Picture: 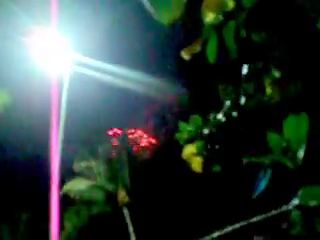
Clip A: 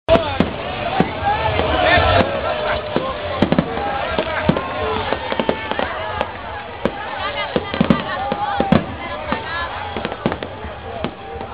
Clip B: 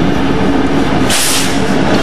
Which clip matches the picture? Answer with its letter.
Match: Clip A